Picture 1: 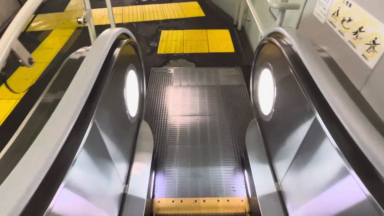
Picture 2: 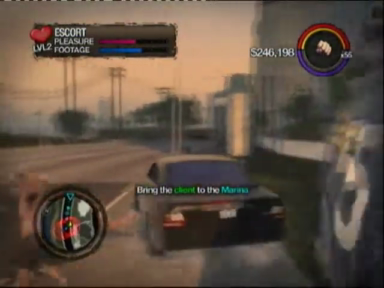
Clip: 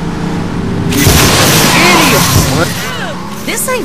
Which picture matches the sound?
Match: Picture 2